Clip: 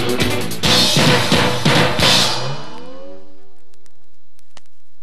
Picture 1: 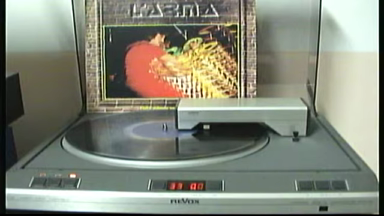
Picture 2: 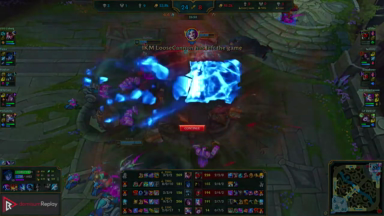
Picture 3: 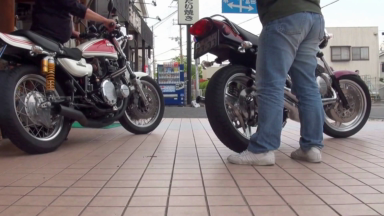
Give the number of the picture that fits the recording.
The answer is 1